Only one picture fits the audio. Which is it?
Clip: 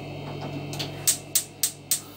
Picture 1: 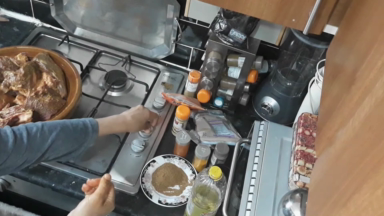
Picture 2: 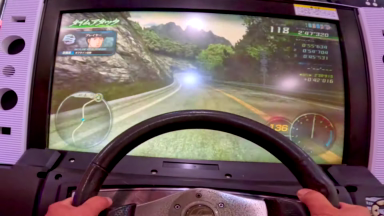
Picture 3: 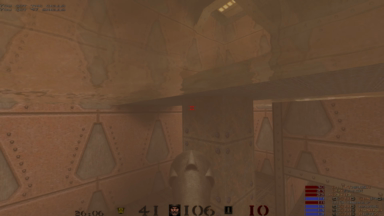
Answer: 1